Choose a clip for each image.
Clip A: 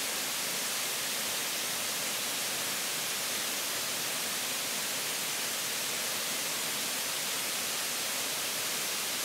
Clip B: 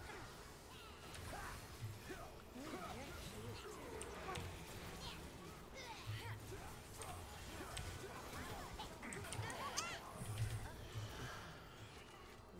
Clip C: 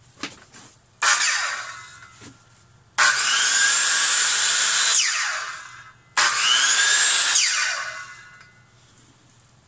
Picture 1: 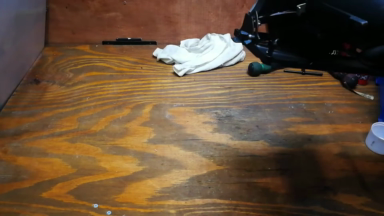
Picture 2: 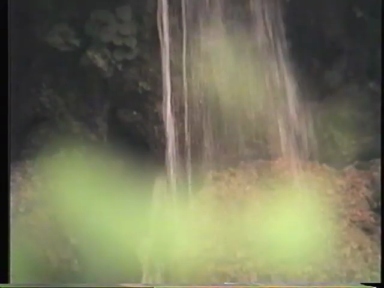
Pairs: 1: C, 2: A